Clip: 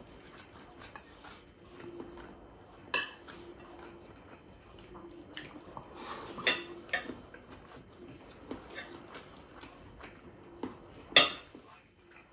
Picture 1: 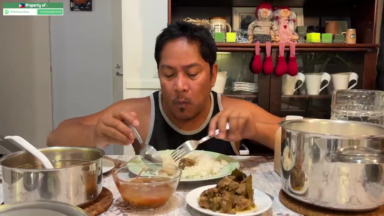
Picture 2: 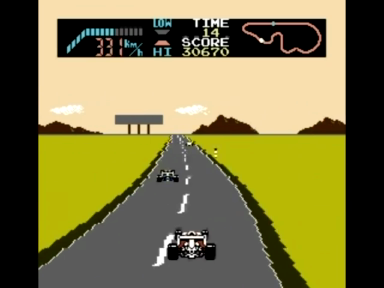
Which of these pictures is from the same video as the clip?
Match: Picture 1